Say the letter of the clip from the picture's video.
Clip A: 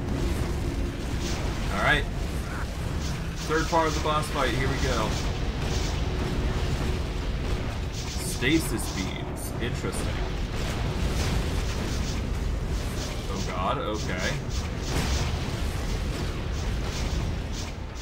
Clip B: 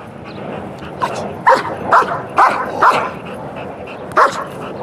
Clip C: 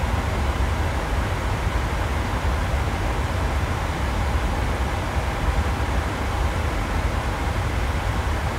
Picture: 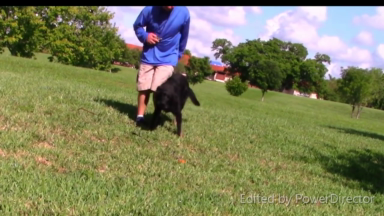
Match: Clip B